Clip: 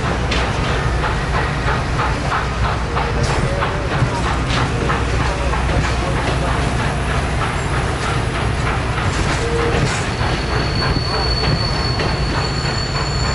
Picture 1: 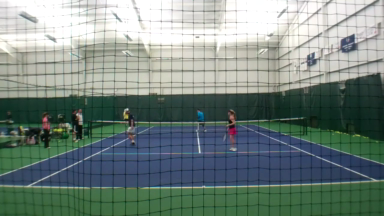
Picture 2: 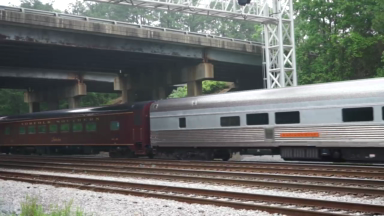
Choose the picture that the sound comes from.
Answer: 2